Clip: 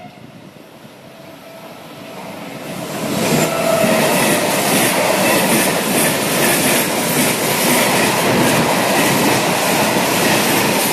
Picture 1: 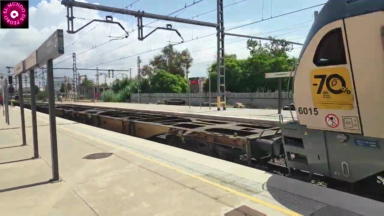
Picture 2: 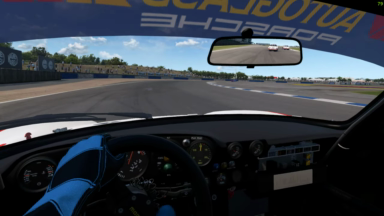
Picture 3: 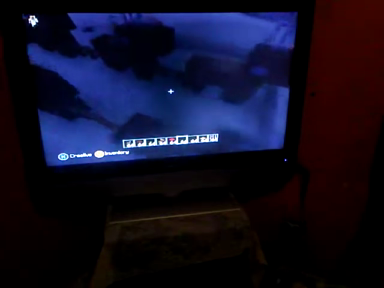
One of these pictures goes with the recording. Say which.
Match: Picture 1